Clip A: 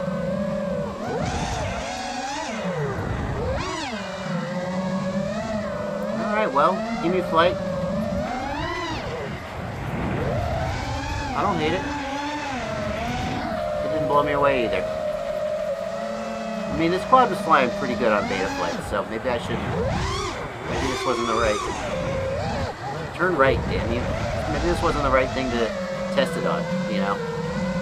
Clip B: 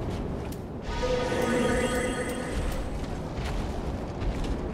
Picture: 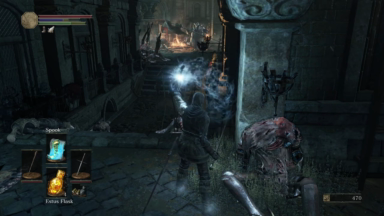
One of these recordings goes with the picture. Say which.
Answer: B